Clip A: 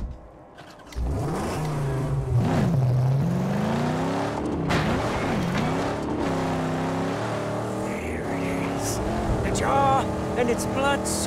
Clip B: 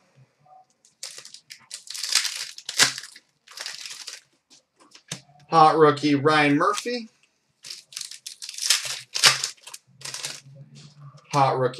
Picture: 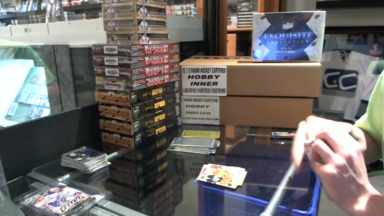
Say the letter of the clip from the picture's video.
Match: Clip B